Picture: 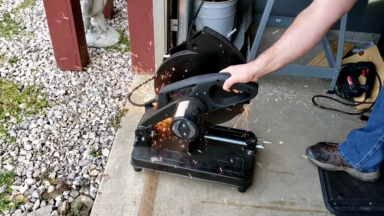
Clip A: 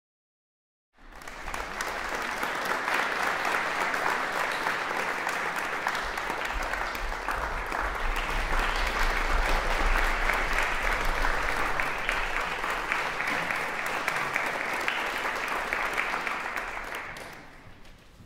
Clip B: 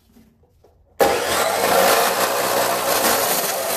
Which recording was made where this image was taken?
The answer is B